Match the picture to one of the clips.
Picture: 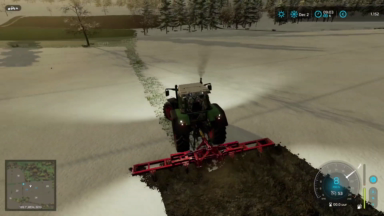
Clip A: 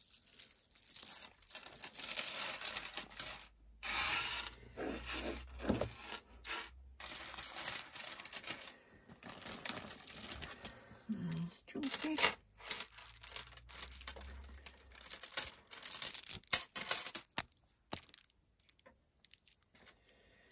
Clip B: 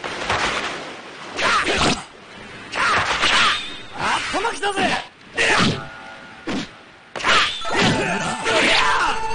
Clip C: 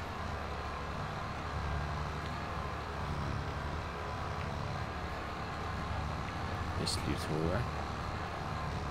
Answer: C